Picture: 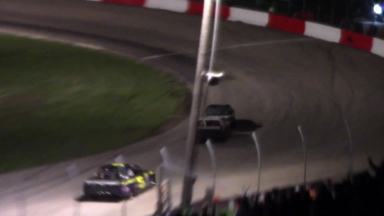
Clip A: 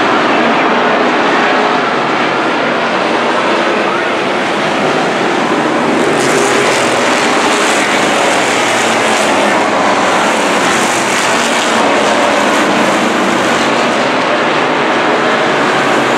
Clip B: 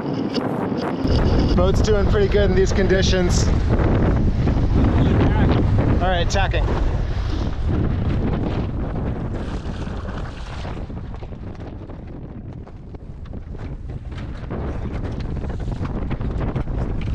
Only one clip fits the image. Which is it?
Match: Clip A